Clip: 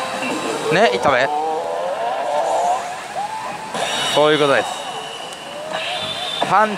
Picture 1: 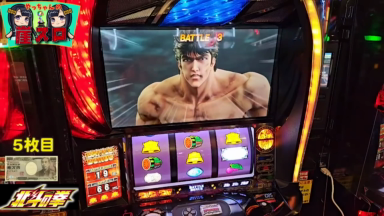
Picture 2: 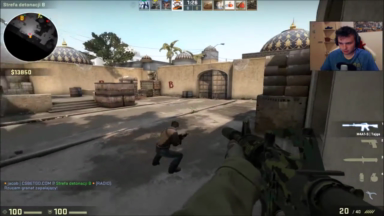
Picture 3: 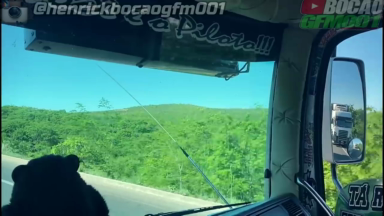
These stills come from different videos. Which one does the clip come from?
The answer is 1